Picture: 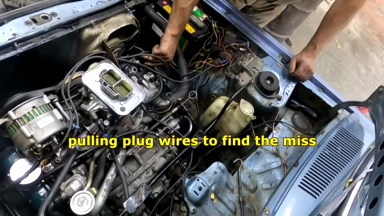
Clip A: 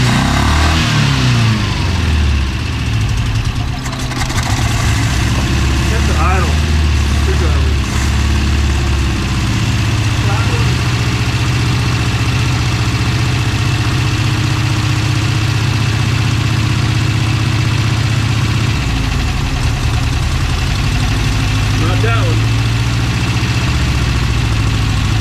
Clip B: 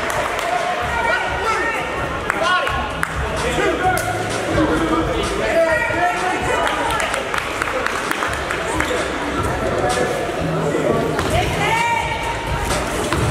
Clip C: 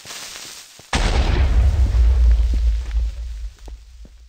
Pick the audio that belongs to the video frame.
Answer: A